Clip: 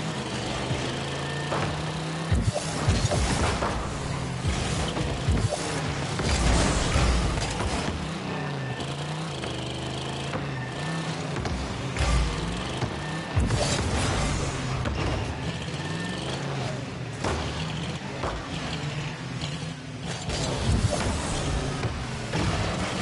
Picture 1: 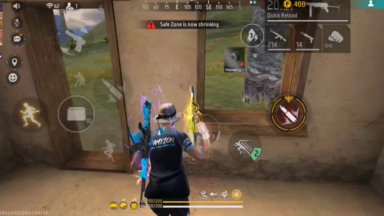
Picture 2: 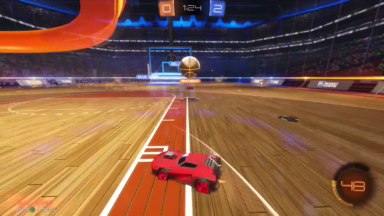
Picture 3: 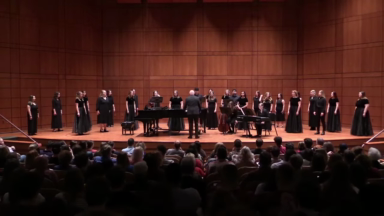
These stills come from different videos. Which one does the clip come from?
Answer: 2